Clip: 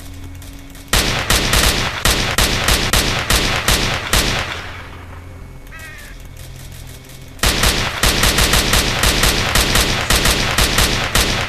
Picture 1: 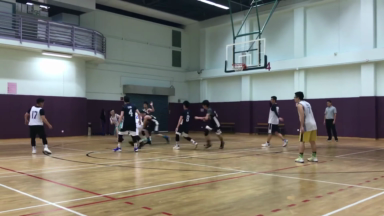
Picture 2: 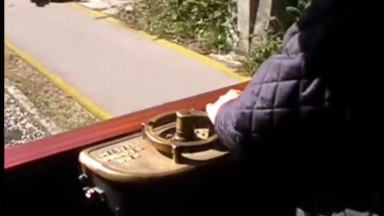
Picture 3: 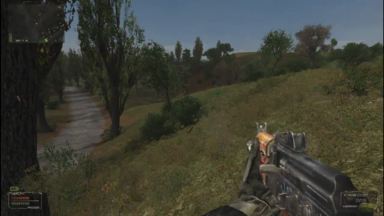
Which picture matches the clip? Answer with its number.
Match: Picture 3